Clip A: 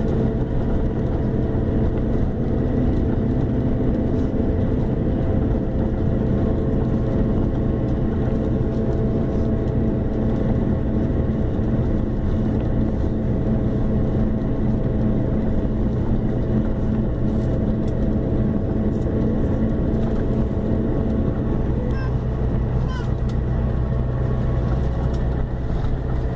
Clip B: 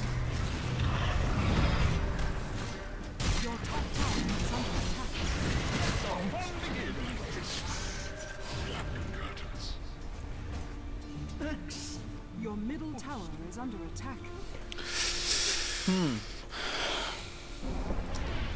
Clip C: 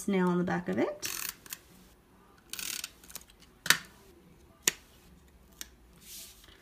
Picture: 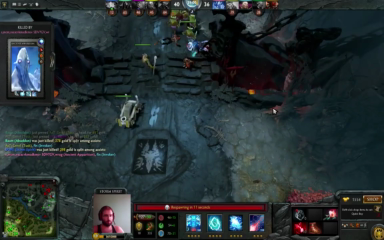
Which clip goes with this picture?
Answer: B